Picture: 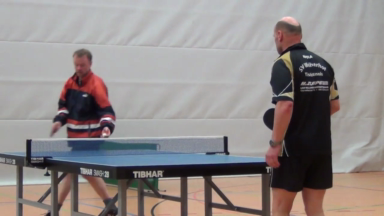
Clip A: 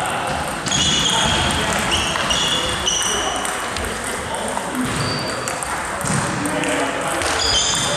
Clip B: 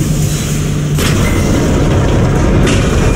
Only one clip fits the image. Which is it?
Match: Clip A